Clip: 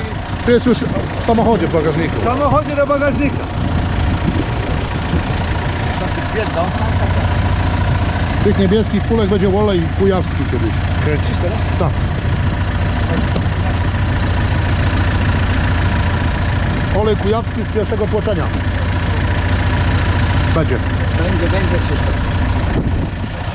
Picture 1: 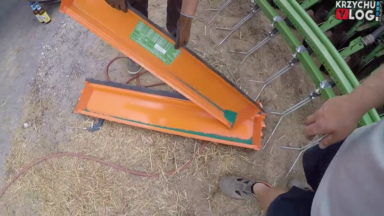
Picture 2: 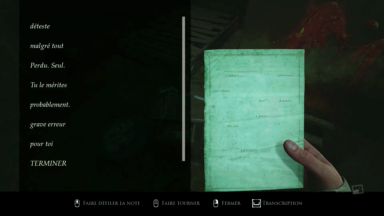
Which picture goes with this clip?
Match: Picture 1